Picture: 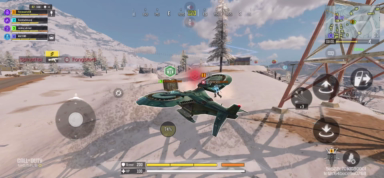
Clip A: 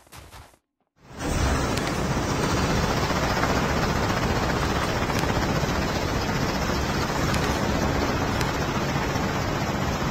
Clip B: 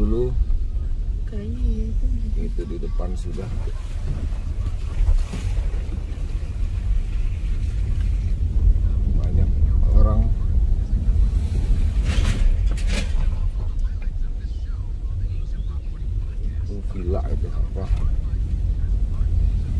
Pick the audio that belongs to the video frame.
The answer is A